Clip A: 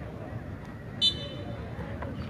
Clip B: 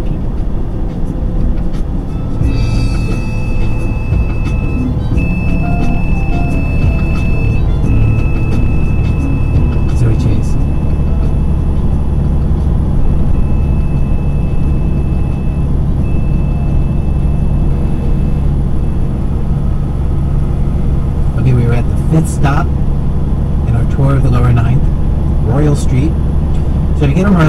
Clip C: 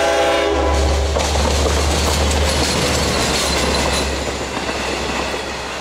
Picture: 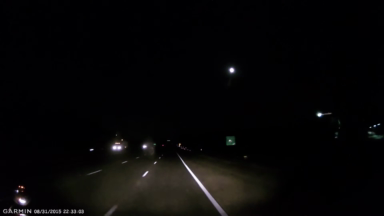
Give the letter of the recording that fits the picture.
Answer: B